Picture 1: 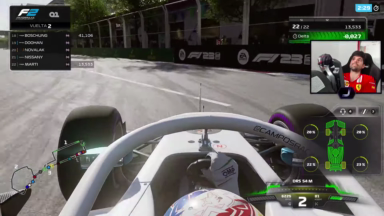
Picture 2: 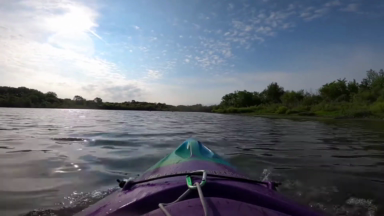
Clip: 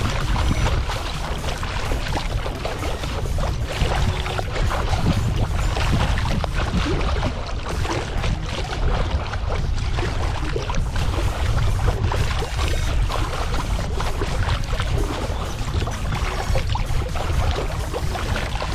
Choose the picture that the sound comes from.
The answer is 2